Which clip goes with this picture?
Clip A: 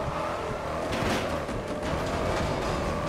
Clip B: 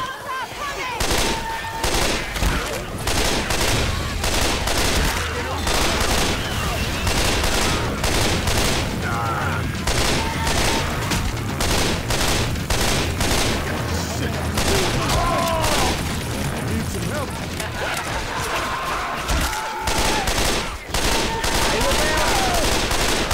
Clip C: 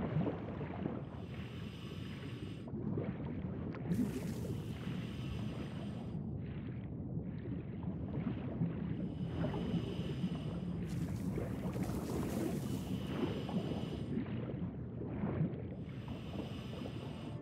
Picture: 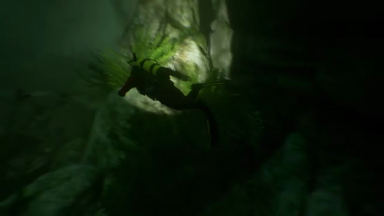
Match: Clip C